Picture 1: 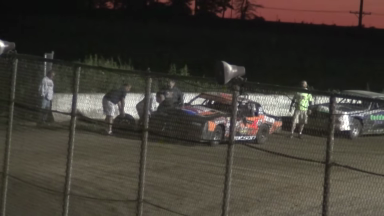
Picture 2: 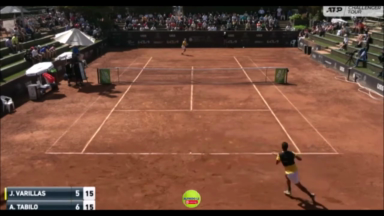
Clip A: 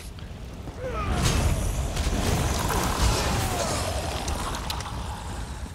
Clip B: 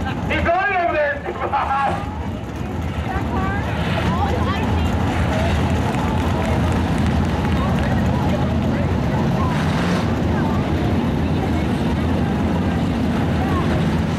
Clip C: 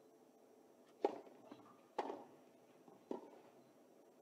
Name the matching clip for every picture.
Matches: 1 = B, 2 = C